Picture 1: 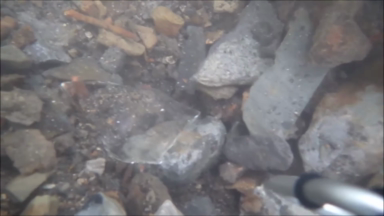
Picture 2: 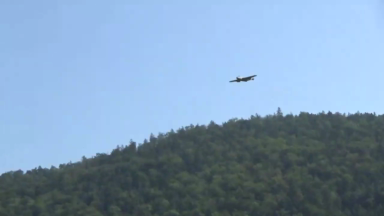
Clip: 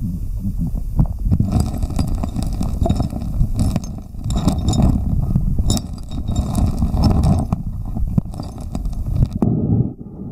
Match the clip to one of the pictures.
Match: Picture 1